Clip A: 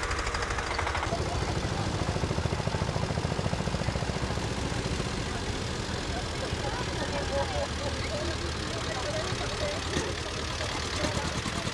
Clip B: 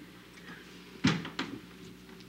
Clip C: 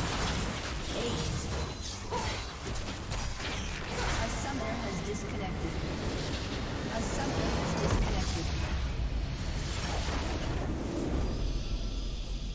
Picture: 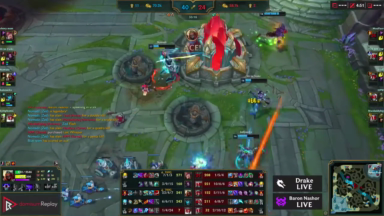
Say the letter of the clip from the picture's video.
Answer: C